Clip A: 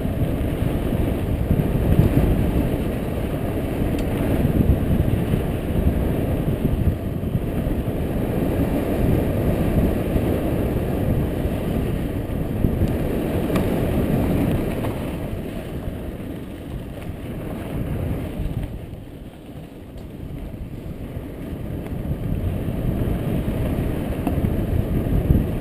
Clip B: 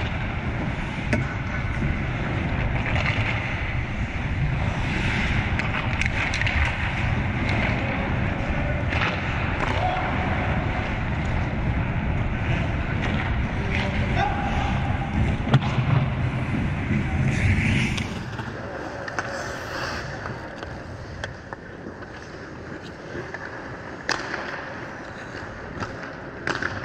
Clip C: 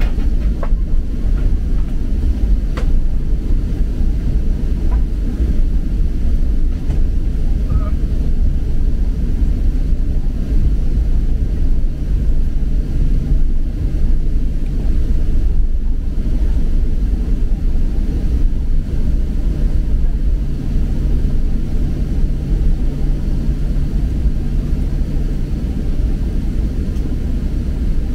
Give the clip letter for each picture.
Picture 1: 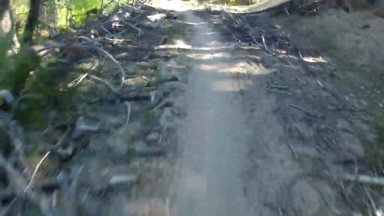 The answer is A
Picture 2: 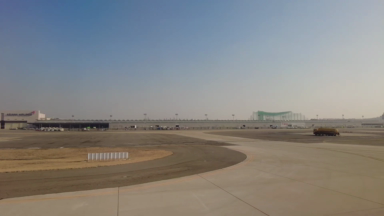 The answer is C